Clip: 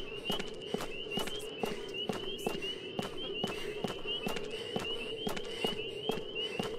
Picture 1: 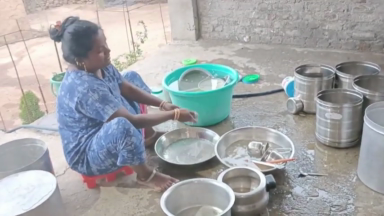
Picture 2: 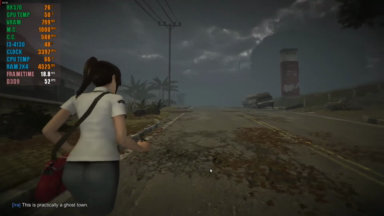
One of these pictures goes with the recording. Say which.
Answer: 2